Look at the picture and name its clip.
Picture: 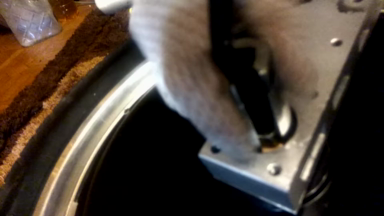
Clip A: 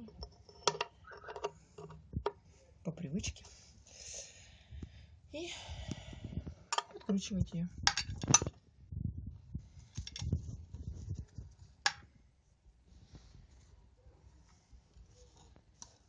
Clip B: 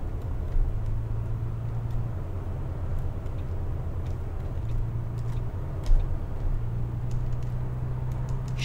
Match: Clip A